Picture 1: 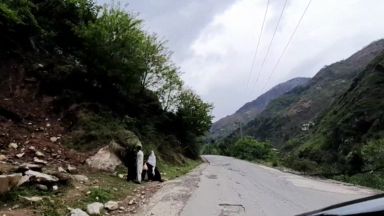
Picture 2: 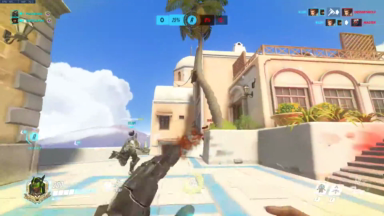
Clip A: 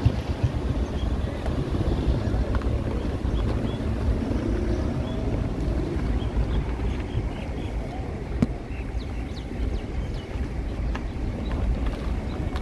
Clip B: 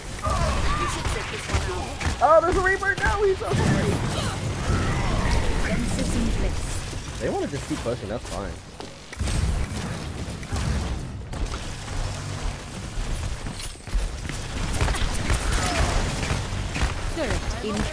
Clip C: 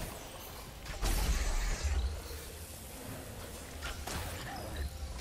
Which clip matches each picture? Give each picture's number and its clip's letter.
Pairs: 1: A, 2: B